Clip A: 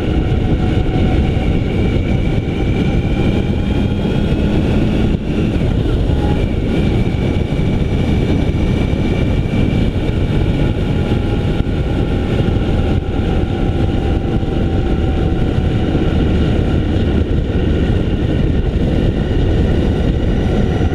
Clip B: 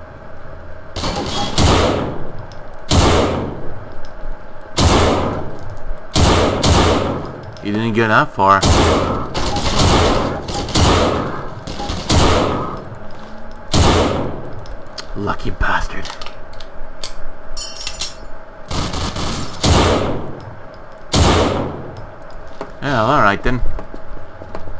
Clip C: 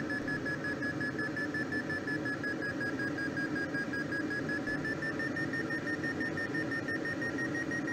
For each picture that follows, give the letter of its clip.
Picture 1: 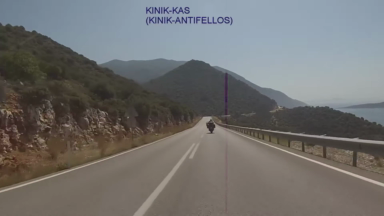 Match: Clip A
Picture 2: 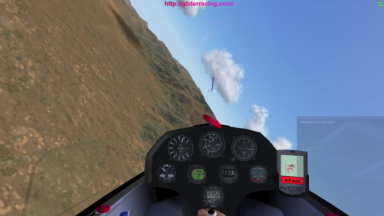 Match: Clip C